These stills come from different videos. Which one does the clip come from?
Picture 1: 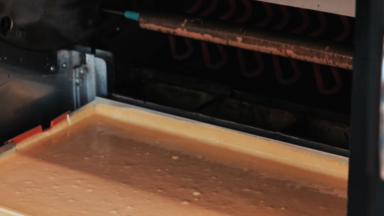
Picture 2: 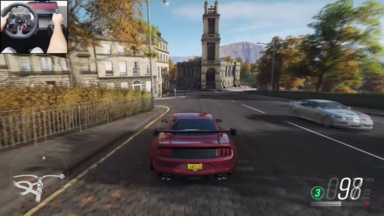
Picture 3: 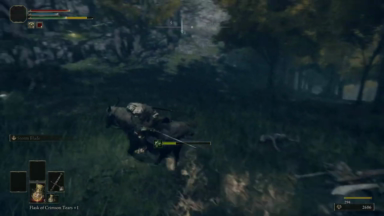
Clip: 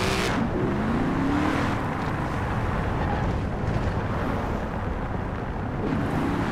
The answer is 2